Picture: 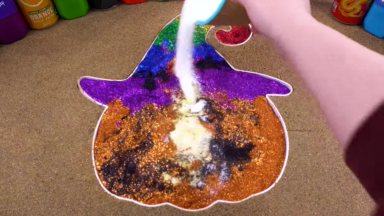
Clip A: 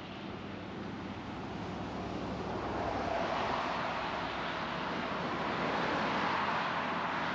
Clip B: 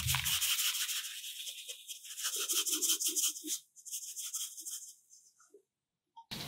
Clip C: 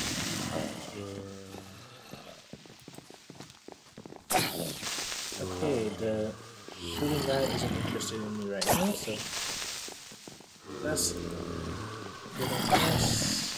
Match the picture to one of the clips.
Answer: B